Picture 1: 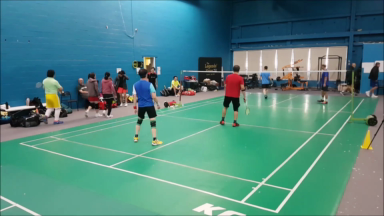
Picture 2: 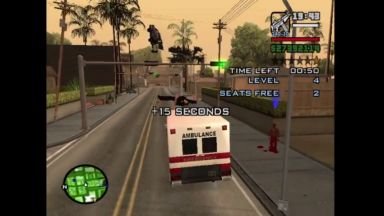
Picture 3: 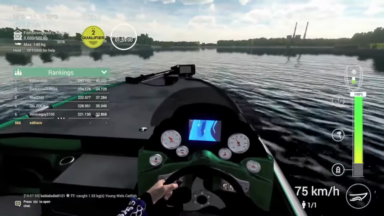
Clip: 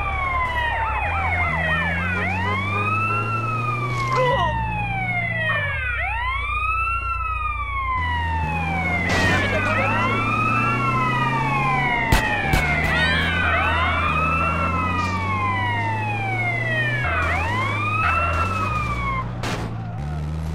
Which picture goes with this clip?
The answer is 2